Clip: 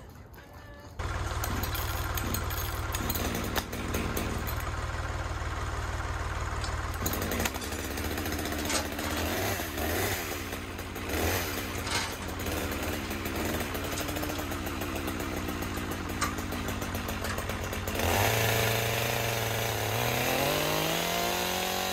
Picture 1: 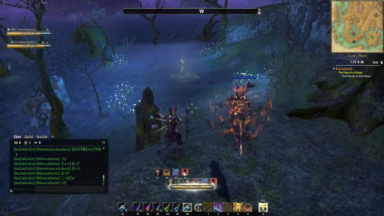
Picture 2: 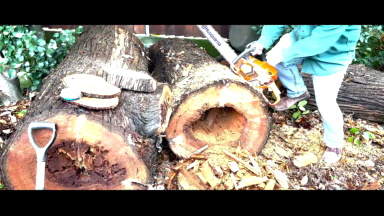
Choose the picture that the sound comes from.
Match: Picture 2